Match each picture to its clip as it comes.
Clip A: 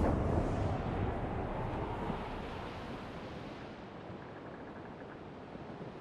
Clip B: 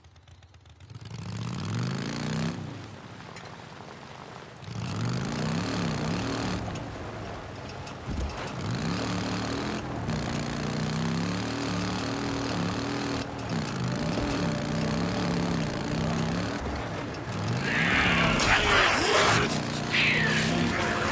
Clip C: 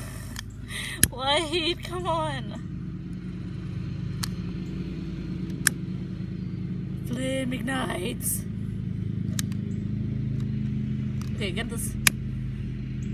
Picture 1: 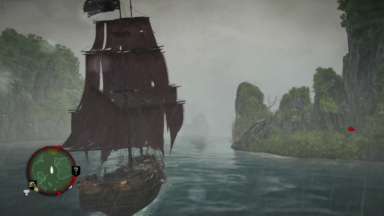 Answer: A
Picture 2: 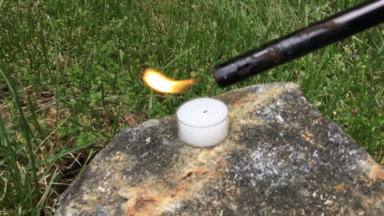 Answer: C